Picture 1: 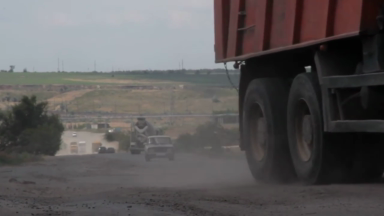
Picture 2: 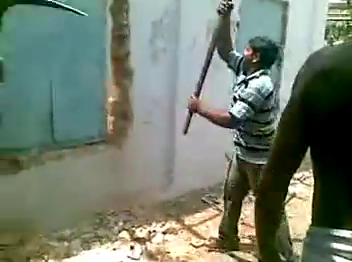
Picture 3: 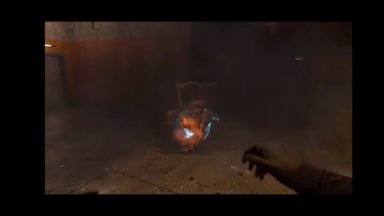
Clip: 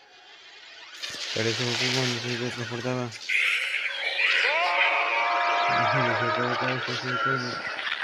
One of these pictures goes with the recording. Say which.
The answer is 3